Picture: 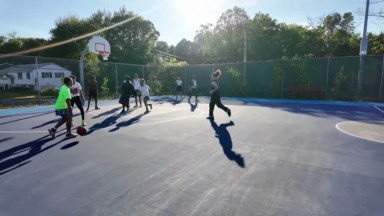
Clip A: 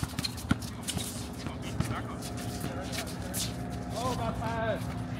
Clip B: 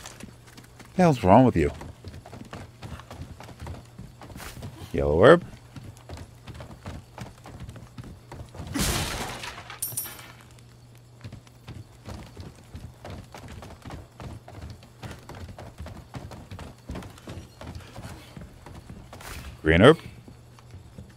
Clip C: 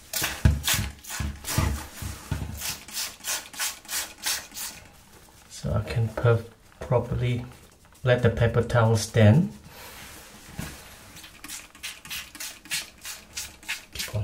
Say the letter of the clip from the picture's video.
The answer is A